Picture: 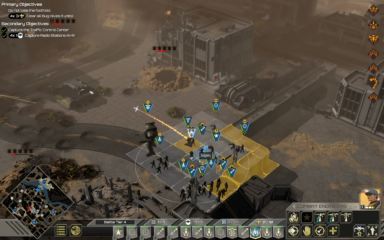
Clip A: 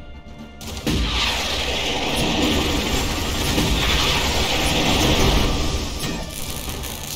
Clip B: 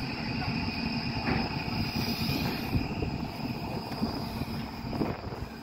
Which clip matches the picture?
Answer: A